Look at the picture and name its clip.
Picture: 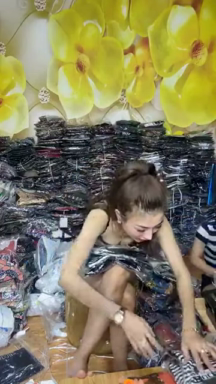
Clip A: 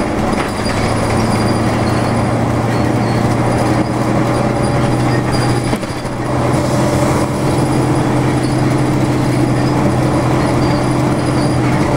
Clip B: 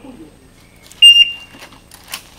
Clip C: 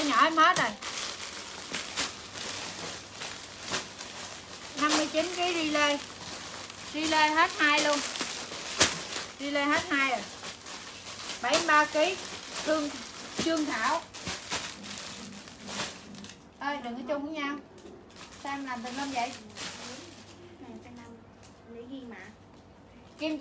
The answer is C